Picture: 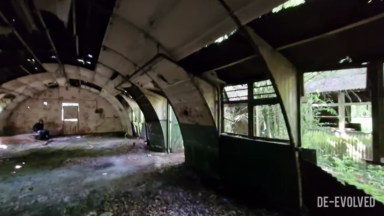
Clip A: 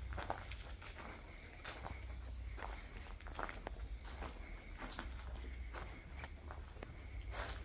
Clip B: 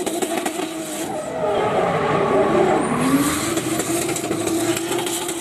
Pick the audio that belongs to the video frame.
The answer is A